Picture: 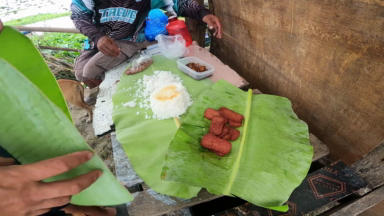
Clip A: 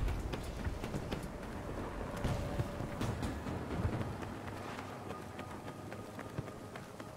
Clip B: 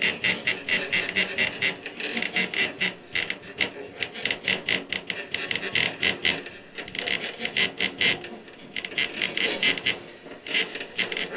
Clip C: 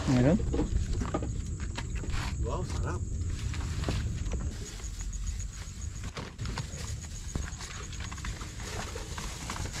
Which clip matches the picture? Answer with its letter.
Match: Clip C